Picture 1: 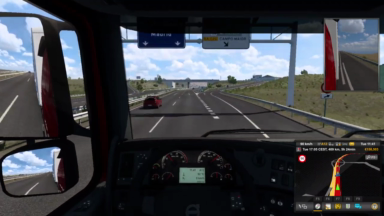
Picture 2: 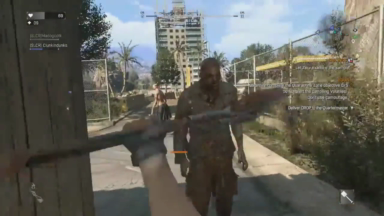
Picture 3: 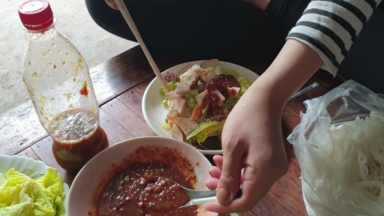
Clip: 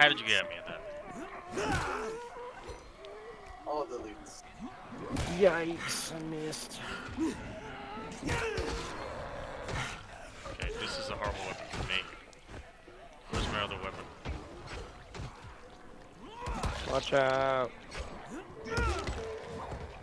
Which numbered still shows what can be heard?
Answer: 2